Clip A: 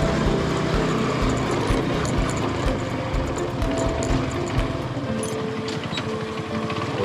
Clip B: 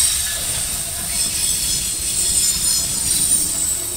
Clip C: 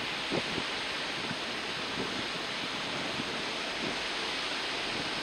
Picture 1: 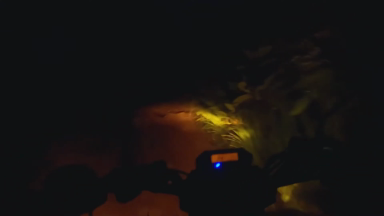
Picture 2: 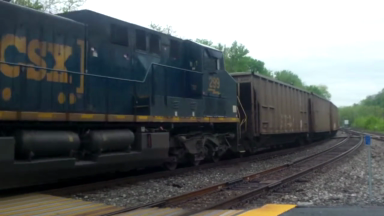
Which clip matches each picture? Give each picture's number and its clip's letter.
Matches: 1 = A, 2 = B